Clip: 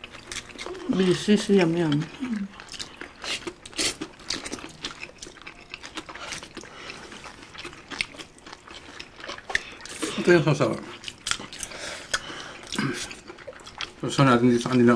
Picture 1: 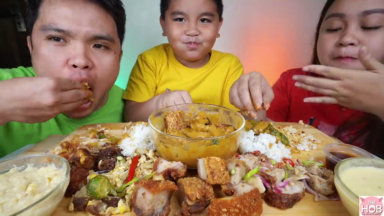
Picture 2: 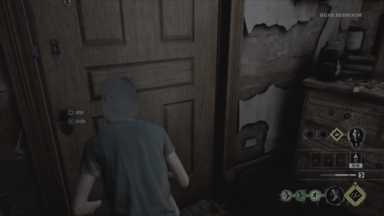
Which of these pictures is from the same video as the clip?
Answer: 1